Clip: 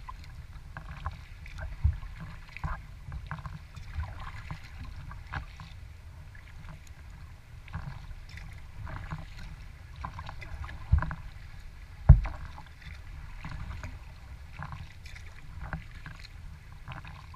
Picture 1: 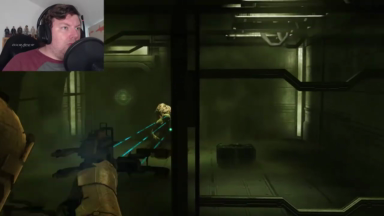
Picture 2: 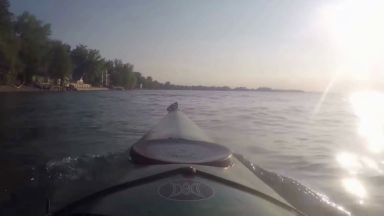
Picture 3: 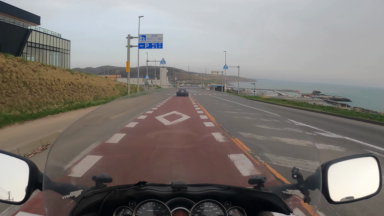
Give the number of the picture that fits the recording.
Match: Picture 2